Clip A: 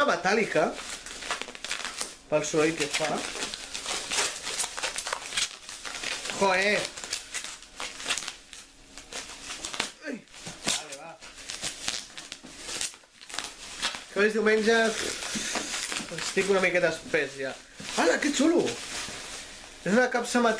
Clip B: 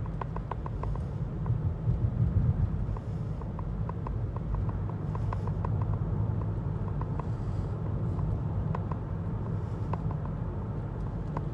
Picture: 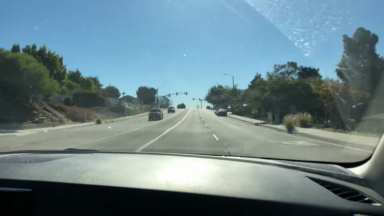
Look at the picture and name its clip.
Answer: B